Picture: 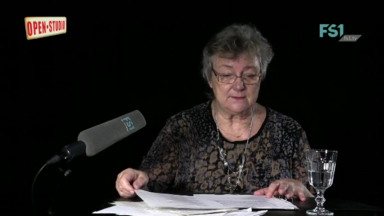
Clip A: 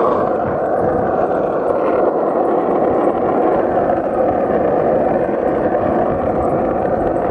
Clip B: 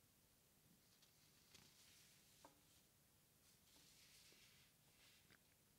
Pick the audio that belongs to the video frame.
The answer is B